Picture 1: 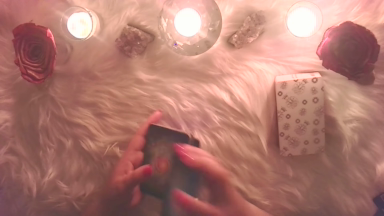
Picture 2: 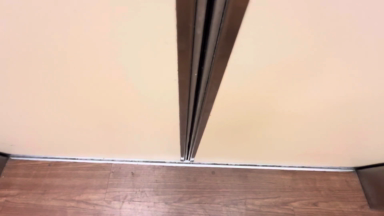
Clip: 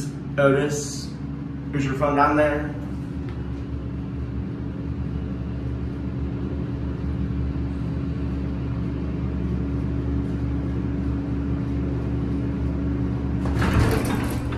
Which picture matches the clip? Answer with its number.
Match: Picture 2